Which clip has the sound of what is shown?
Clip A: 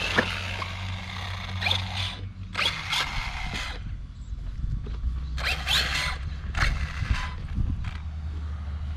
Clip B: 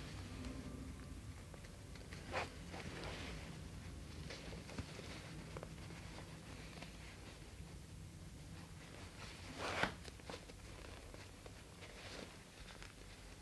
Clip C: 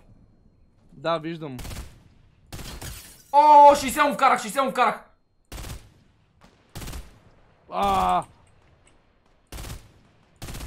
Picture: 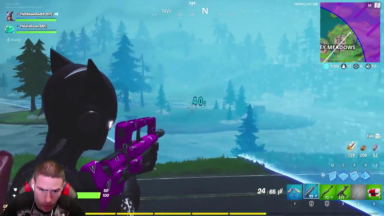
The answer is C